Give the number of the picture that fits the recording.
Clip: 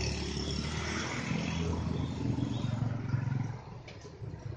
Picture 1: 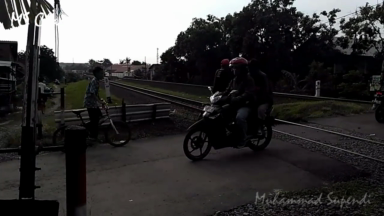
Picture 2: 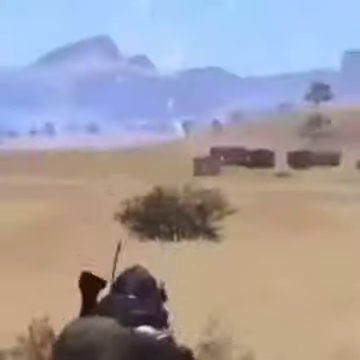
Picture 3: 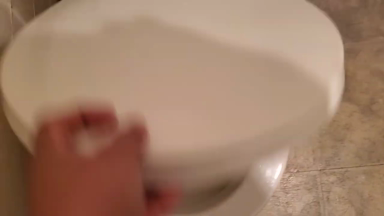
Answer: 1